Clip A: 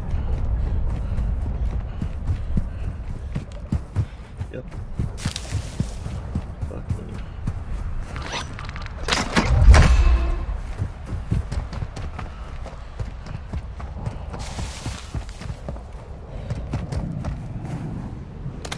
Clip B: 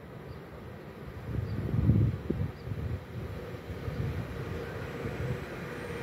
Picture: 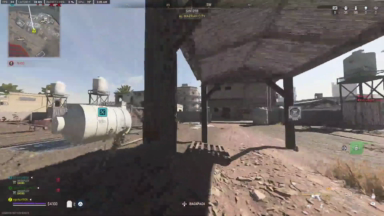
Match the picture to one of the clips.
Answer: A